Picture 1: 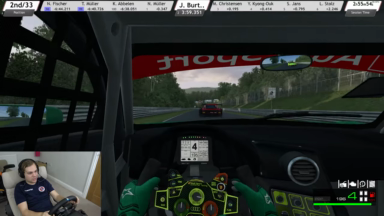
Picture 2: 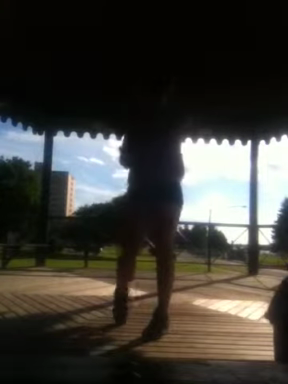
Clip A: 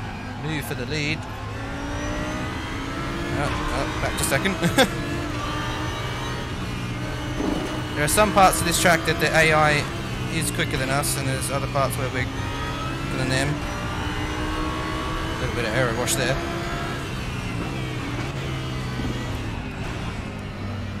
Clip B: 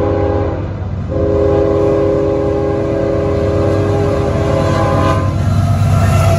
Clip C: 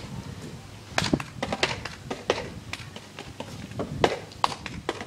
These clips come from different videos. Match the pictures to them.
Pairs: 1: A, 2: C